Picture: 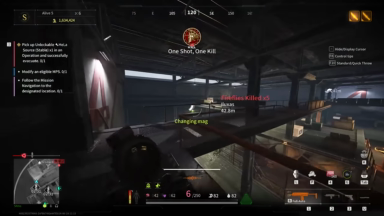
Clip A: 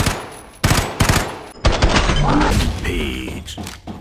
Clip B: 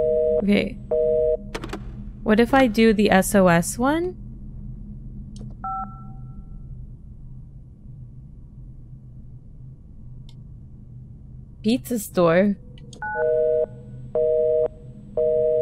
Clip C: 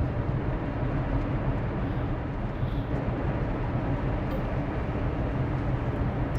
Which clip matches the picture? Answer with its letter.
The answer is A